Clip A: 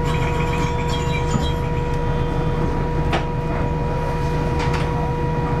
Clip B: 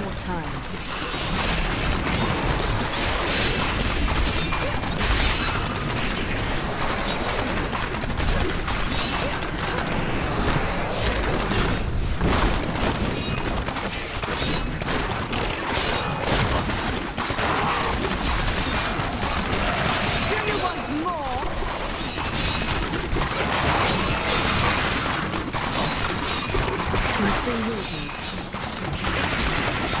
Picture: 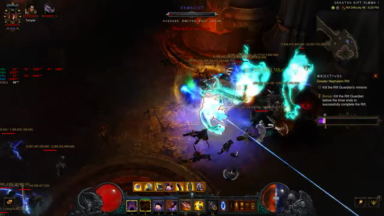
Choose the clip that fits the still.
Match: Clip B